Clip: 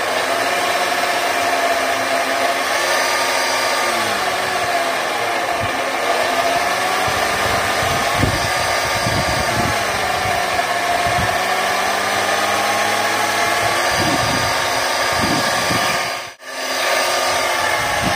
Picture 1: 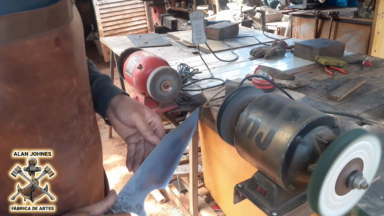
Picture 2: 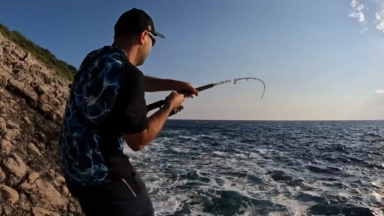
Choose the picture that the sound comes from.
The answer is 1